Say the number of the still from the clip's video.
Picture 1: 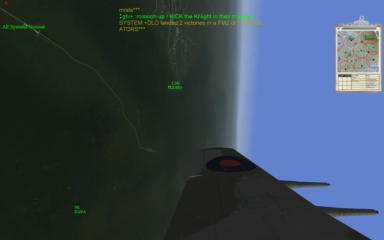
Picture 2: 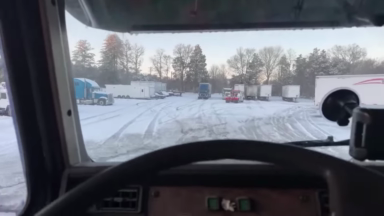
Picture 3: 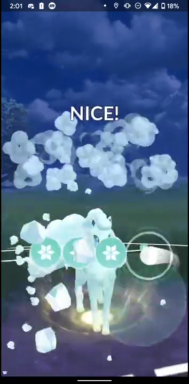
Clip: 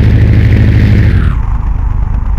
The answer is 1